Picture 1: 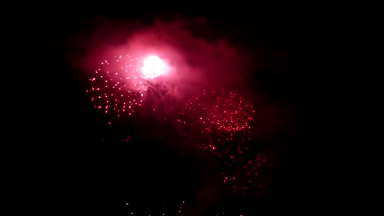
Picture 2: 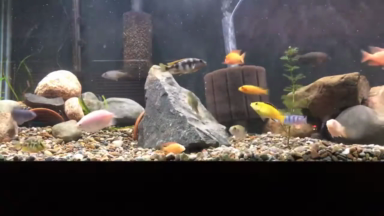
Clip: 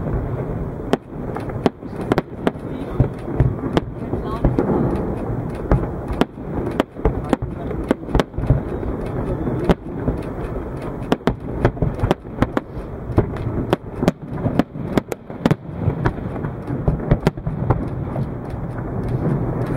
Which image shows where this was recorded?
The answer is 1